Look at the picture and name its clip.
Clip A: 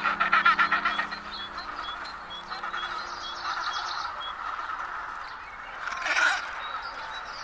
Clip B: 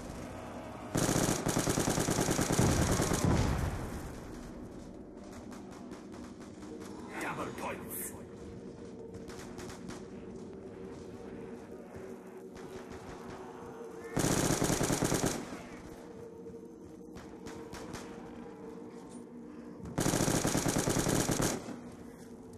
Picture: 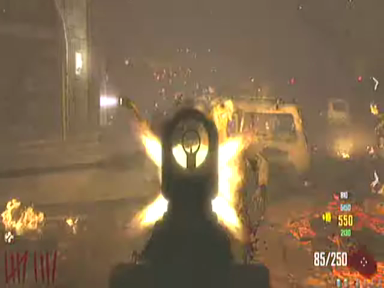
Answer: B